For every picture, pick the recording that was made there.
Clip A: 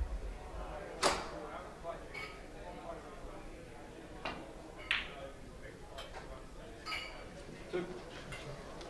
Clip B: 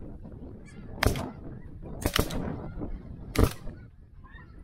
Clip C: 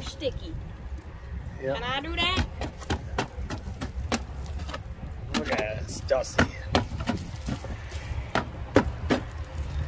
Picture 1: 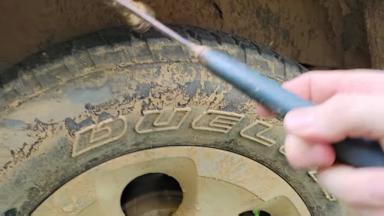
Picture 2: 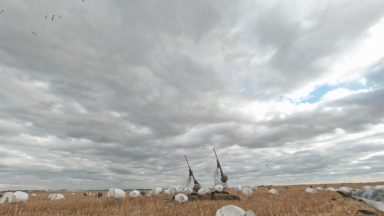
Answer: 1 C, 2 B